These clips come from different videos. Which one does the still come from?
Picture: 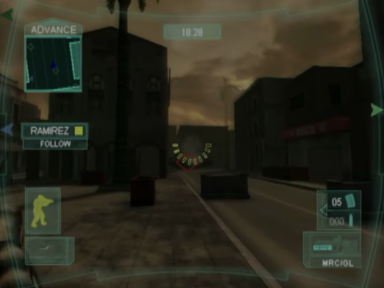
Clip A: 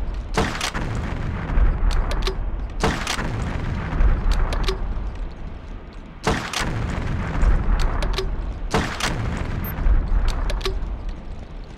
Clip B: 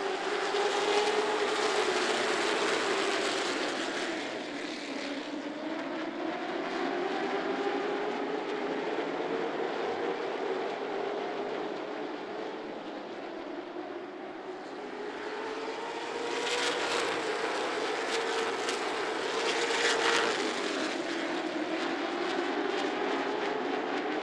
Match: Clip A